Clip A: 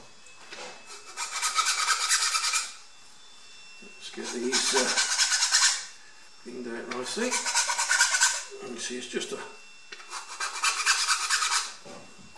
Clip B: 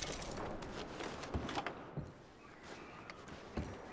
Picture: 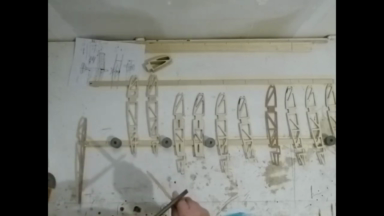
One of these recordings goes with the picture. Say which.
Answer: A